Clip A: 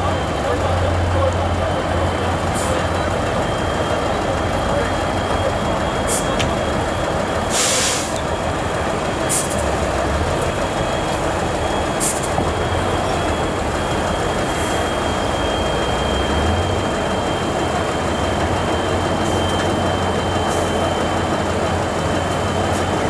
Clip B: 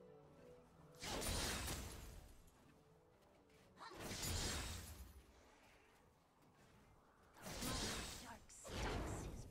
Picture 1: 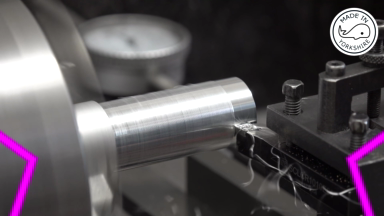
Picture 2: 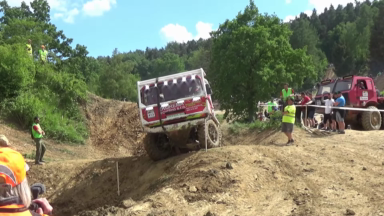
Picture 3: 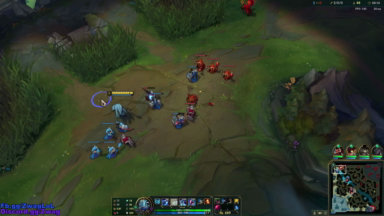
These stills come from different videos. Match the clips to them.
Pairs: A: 2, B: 3